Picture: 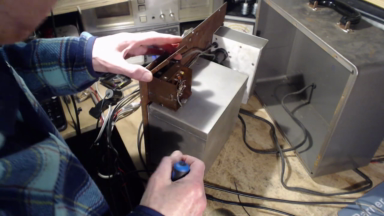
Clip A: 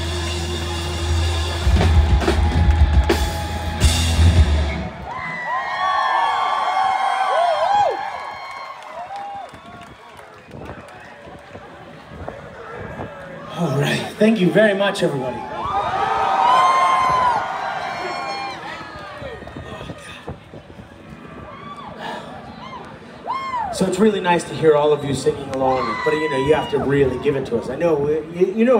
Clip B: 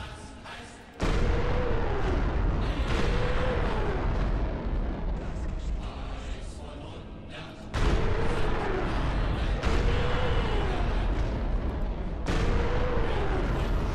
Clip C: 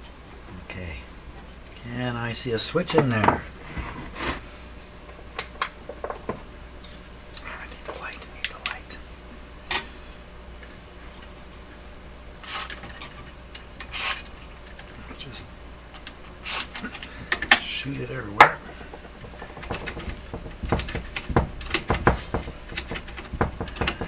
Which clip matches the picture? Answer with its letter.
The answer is C